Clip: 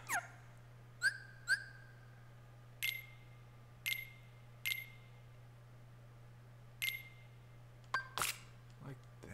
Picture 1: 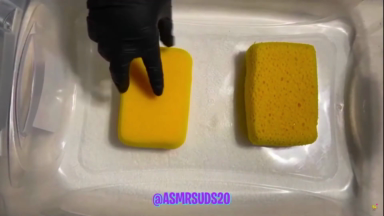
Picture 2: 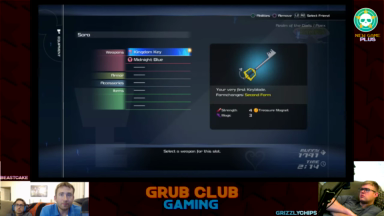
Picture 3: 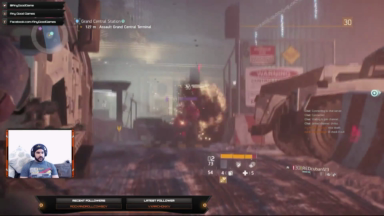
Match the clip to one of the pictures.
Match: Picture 2